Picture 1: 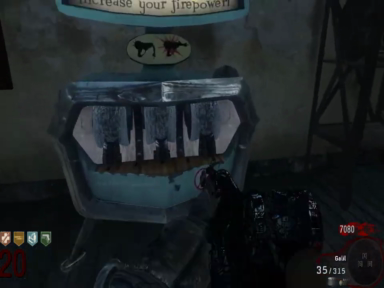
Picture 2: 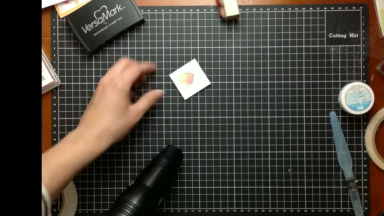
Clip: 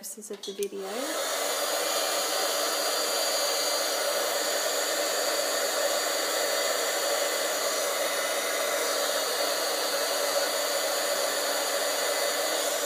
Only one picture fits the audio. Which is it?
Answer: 2